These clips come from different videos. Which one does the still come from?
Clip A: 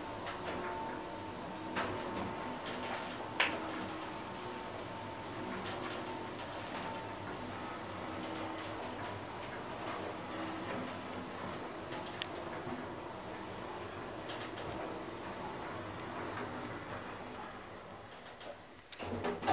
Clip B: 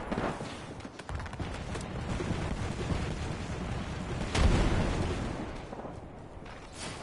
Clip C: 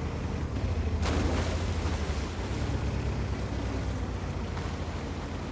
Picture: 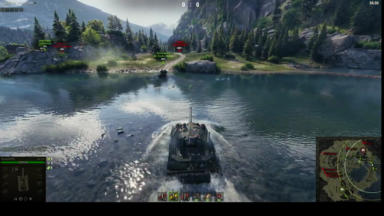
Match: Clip C